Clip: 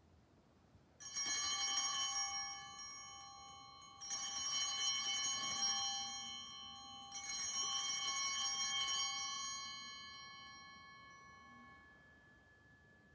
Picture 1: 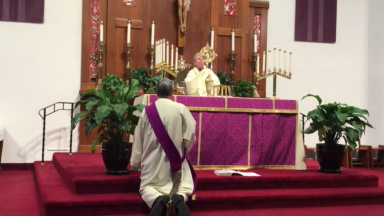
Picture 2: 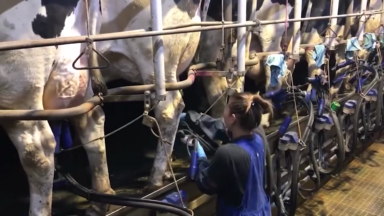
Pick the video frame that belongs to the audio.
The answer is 1